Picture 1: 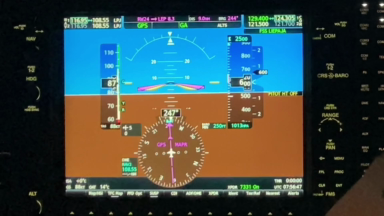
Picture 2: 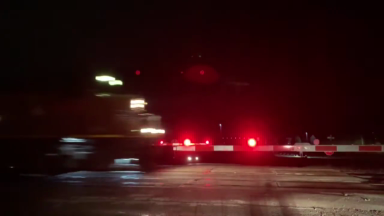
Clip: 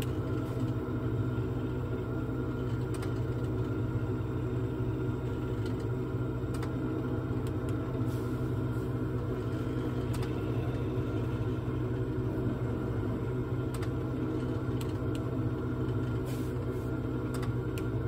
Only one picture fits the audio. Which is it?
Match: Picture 1